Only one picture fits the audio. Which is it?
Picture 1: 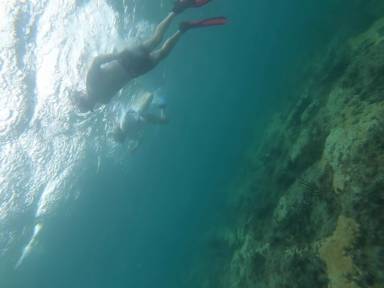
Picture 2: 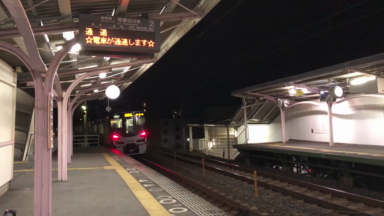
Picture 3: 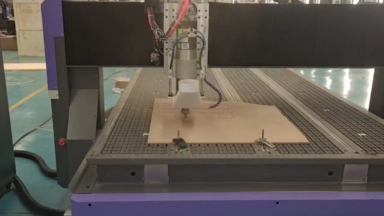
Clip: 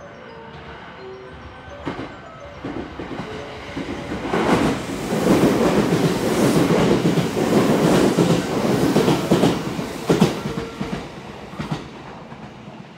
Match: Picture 2